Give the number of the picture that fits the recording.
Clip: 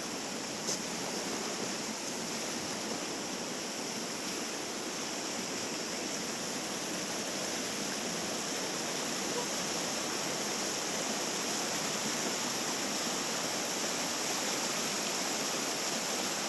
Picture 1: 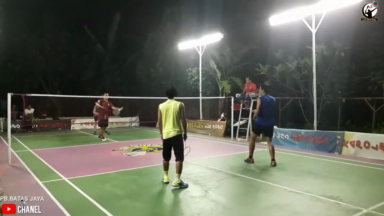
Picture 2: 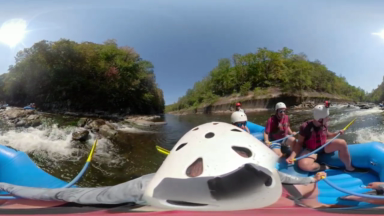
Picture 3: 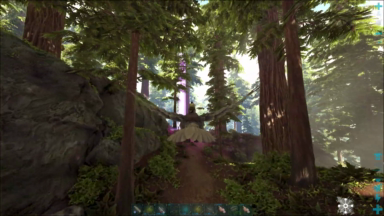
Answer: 2